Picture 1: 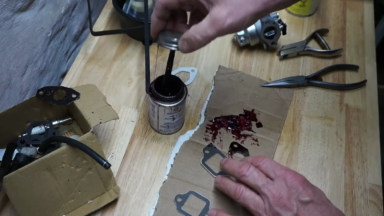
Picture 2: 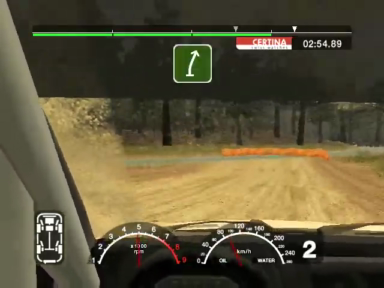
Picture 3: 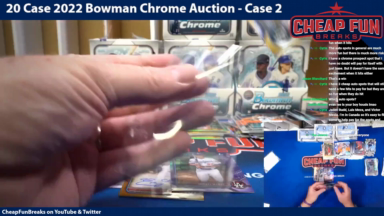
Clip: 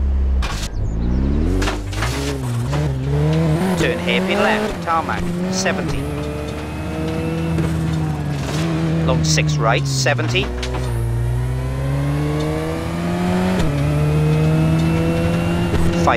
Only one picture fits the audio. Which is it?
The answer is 2